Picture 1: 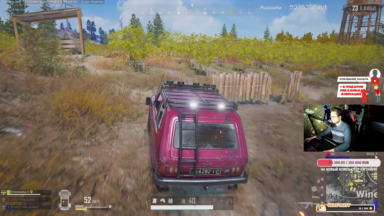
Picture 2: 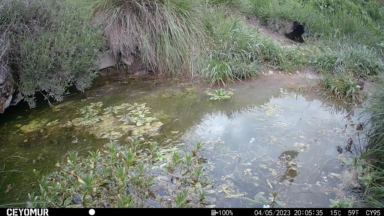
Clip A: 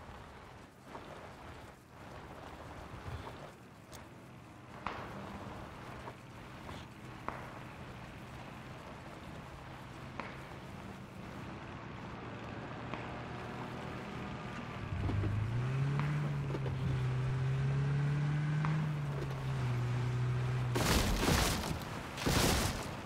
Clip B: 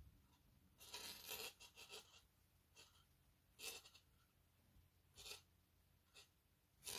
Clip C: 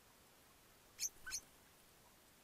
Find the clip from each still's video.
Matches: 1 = A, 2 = C